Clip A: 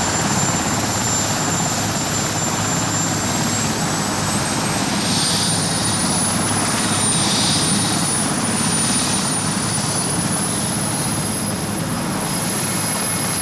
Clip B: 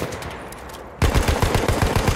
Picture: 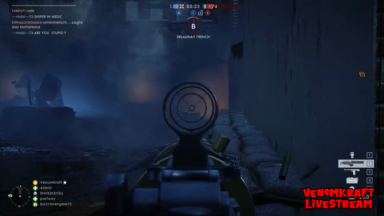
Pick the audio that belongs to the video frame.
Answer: B